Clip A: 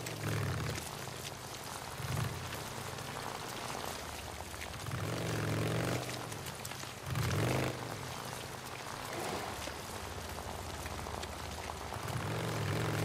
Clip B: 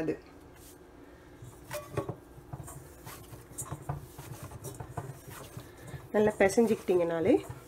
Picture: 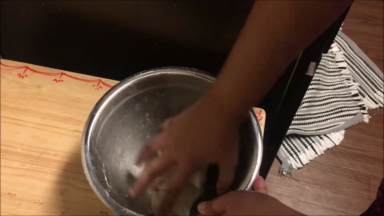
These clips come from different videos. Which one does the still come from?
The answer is B